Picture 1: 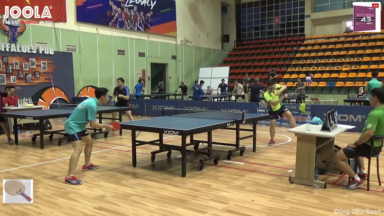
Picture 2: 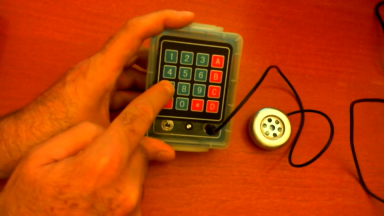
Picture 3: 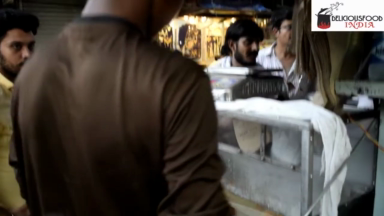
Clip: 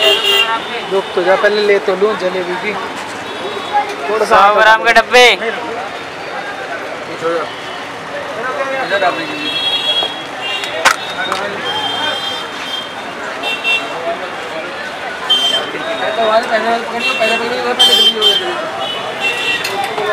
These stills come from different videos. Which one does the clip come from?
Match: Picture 3